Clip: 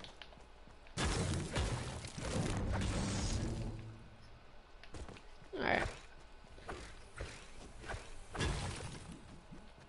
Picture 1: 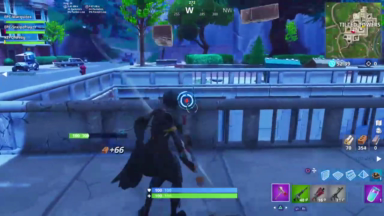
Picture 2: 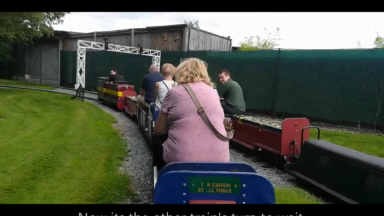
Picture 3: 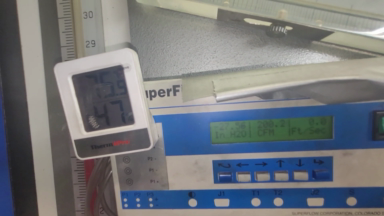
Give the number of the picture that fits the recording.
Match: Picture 1